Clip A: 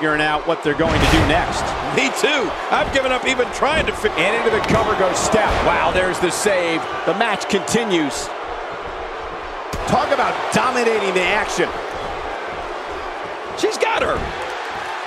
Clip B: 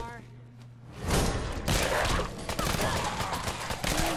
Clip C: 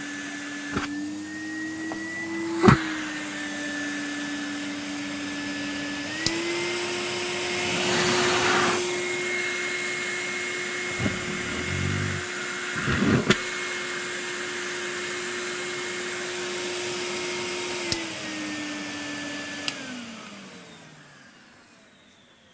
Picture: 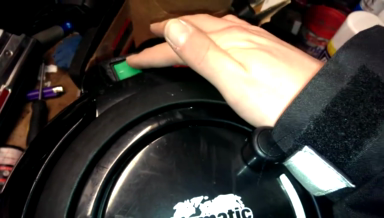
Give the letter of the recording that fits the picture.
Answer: C